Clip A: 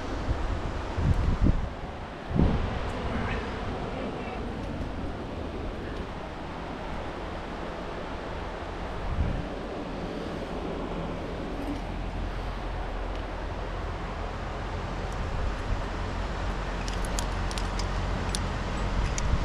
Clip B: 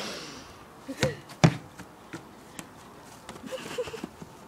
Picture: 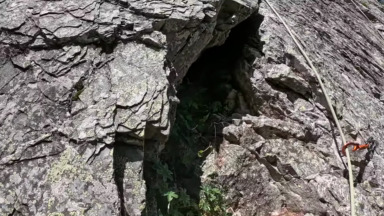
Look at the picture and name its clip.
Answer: A